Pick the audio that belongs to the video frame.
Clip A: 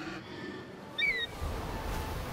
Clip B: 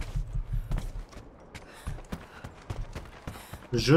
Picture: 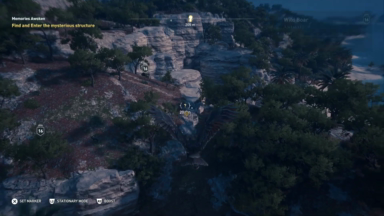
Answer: A